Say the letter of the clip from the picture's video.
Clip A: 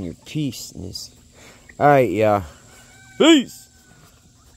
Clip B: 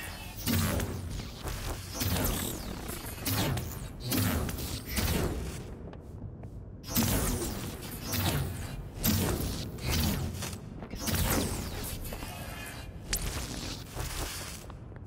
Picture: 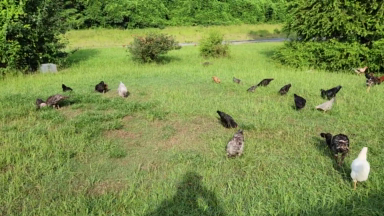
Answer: A